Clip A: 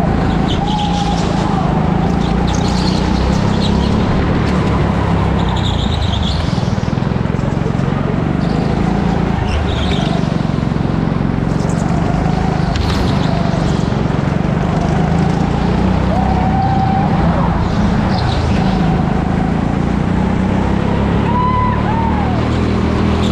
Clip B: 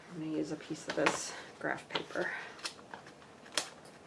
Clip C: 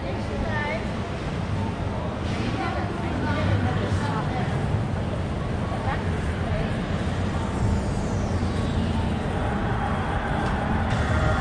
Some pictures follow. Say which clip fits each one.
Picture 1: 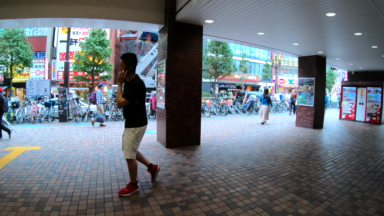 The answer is C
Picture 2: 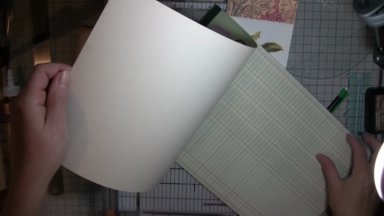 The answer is B